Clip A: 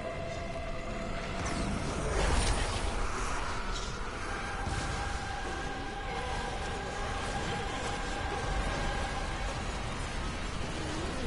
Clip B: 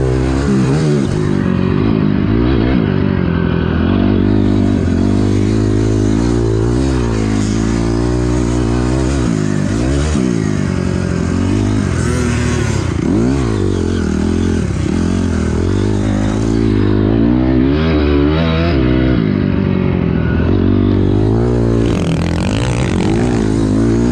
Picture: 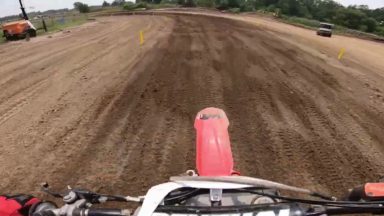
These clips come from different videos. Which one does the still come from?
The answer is B